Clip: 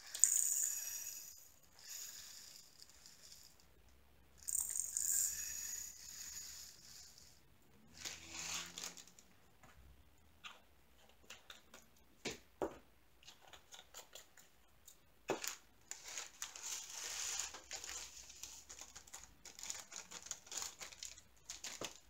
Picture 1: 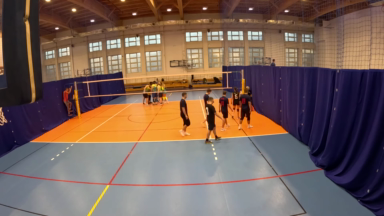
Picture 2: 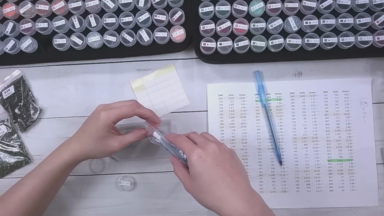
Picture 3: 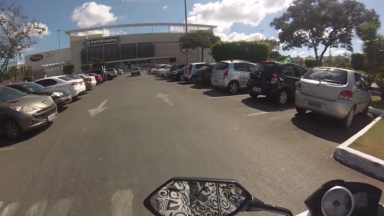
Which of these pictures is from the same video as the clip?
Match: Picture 2